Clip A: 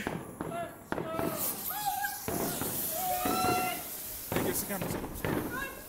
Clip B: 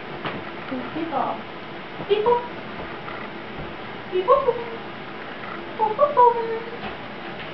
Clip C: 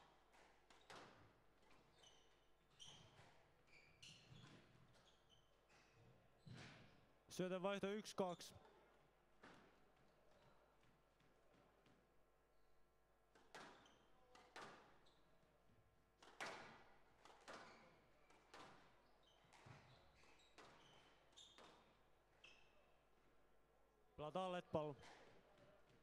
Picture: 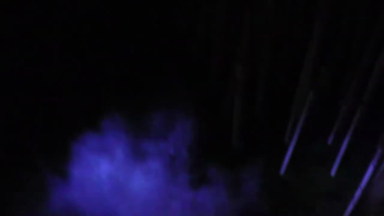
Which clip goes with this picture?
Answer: A